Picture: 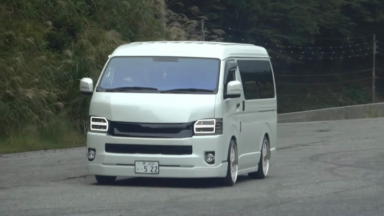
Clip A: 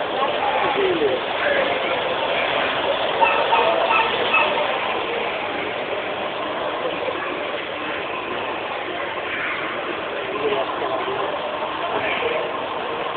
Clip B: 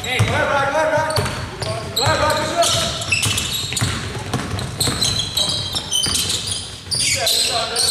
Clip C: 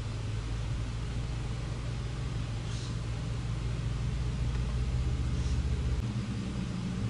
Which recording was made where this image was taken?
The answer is C